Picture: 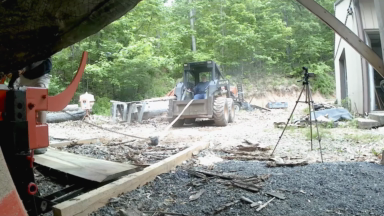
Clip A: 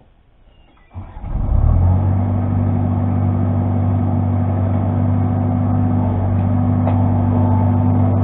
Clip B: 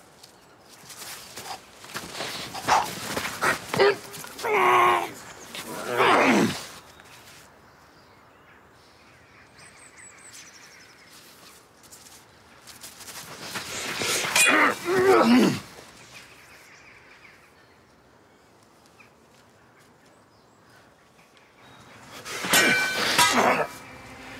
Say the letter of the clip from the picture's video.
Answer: A